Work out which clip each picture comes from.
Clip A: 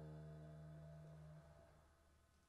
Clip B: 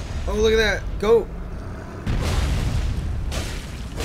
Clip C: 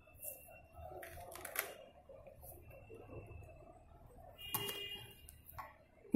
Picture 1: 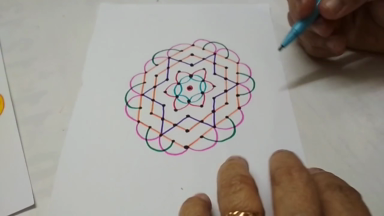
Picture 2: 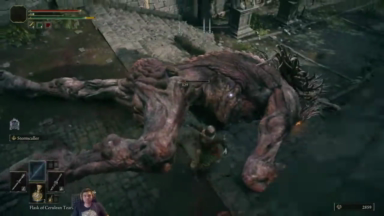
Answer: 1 C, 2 B